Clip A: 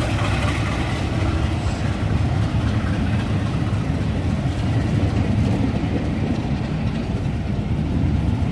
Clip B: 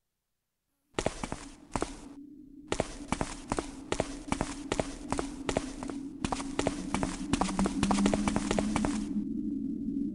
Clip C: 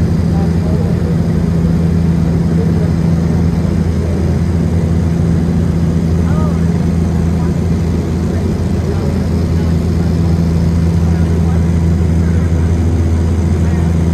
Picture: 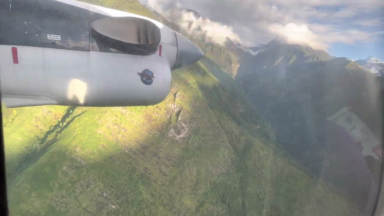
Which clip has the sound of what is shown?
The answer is C